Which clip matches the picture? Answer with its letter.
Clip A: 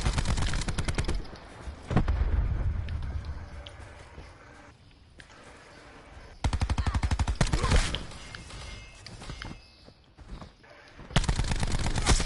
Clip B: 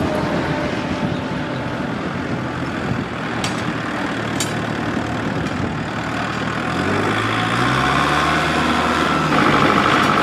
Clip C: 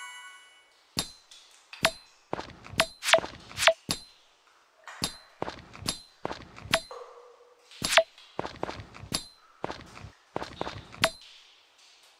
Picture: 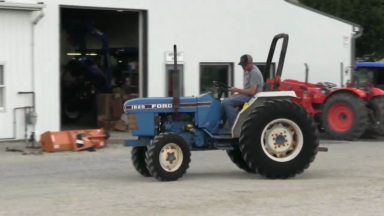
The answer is B